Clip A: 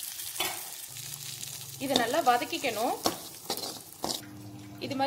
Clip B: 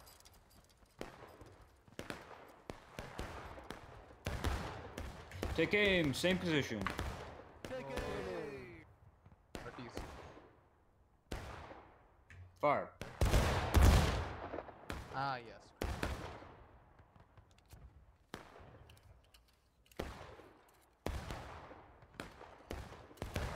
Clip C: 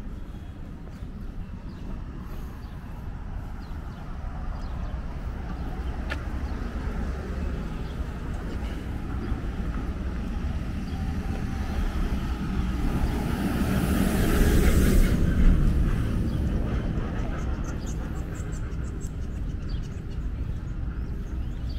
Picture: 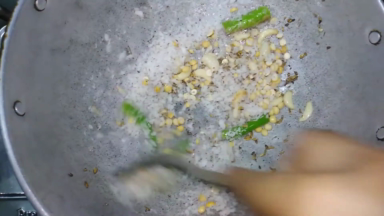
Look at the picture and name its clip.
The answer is A